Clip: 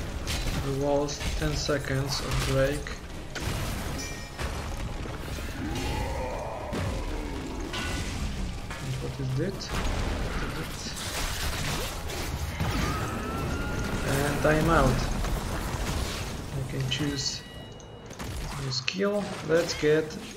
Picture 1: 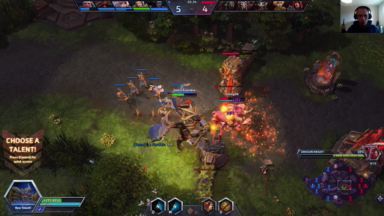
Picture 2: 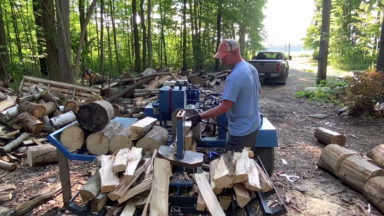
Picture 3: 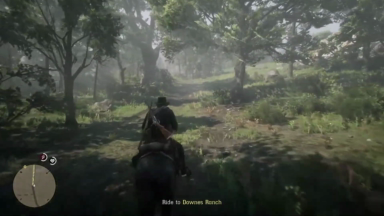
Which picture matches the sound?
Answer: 1